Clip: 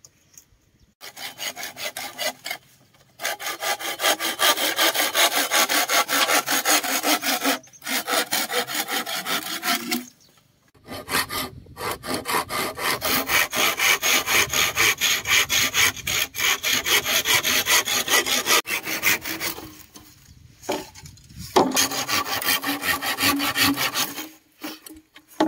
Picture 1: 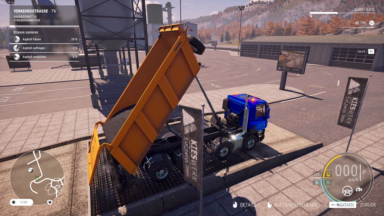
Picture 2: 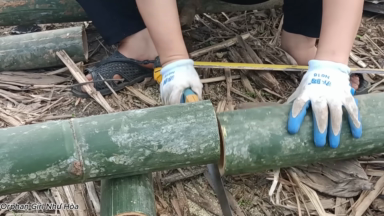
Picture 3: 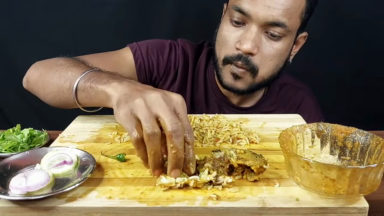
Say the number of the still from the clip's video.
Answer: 2